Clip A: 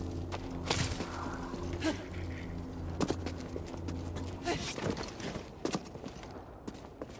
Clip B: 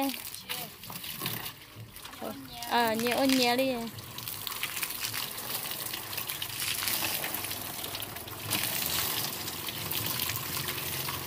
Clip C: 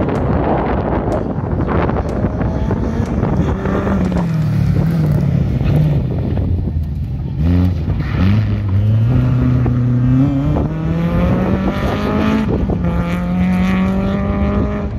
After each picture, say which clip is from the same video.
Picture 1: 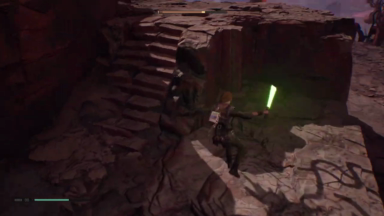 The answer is A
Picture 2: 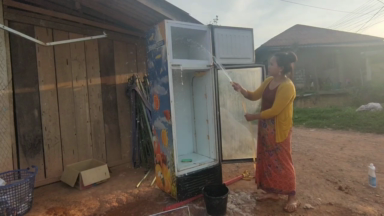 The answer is B